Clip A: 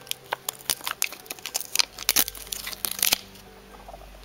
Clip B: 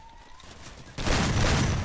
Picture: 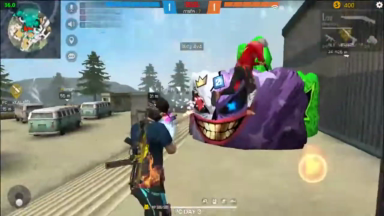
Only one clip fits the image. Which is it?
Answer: B